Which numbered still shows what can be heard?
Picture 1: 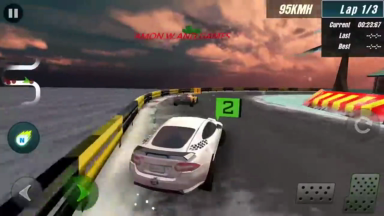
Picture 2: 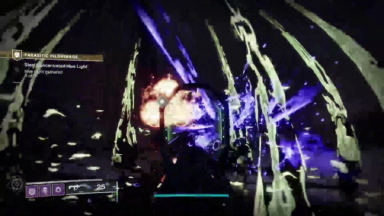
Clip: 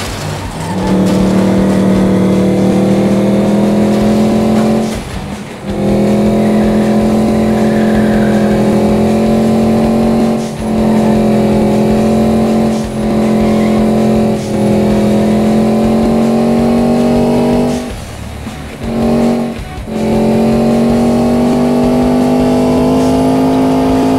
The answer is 1